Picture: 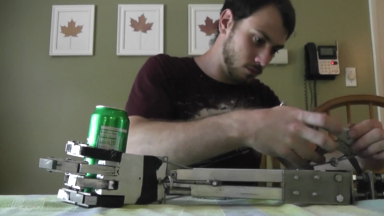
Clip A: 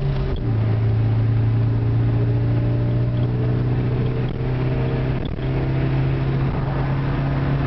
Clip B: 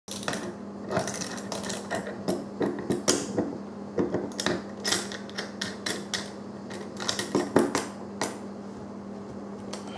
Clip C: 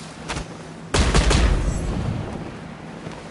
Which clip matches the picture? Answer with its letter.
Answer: B